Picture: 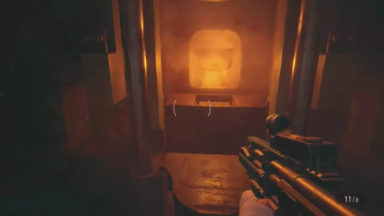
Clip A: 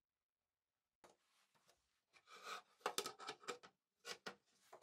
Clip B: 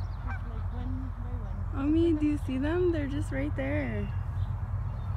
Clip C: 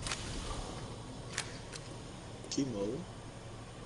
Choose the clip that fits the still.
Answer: C